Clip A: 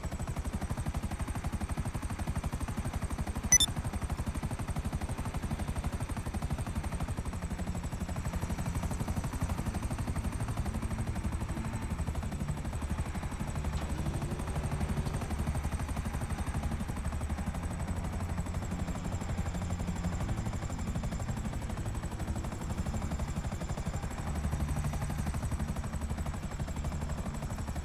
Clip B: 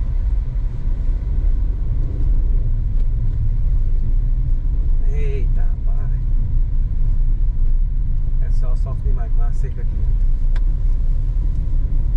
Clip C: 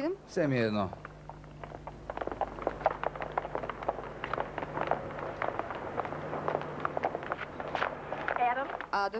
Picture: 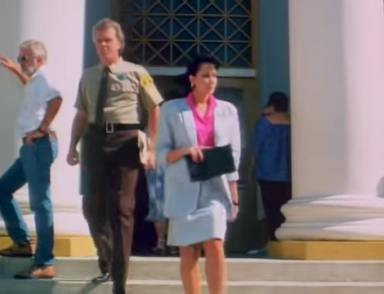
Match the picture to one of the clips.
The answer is C